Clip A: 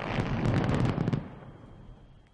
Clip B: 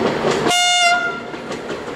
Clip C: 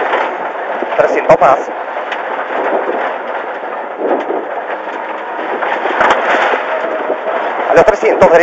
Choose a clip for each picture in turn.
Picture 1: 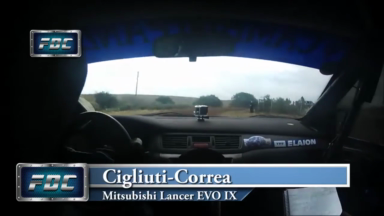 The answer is C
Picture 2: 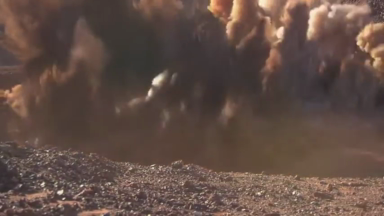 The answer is A